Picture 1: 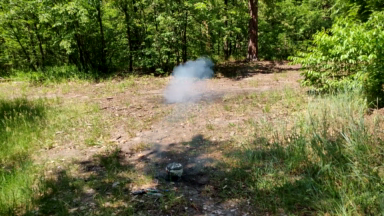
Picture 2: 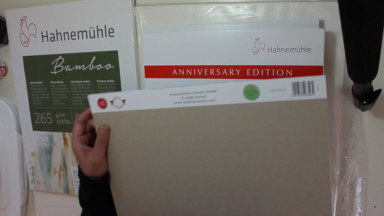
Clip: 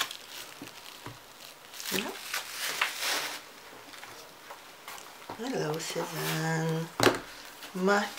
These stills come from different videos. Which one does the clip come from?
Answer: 2